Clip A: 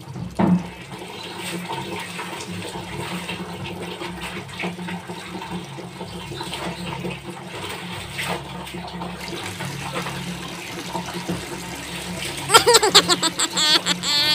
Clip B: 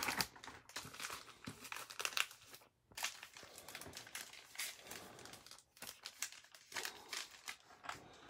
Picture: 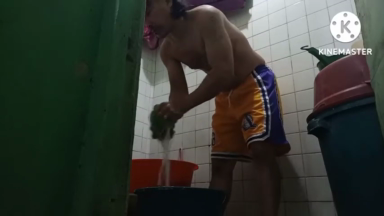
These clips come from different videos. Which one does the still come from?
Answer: A